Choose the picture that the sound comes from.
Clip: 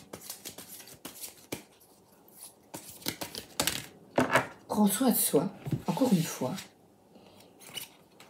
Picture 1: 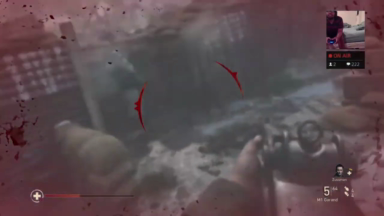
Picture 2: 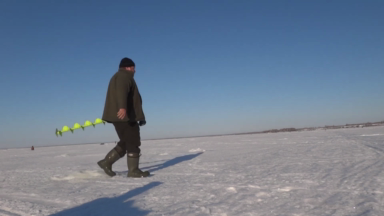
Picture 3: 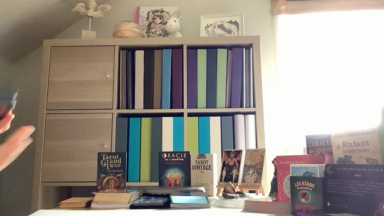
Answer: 3